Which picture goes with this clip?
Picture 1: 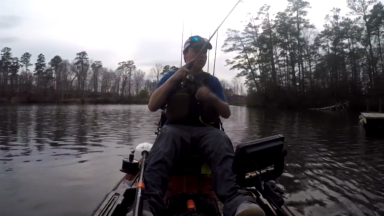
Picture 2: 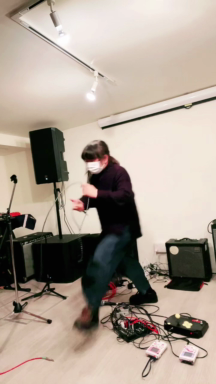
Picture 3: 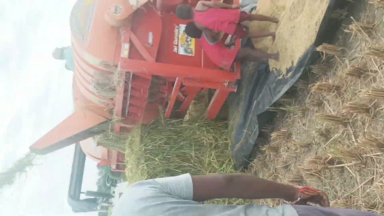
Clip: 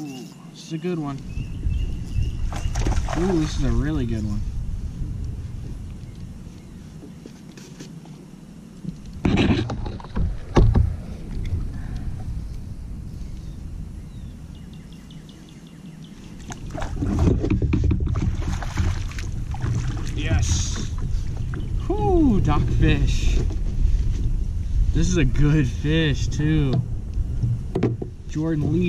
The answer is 1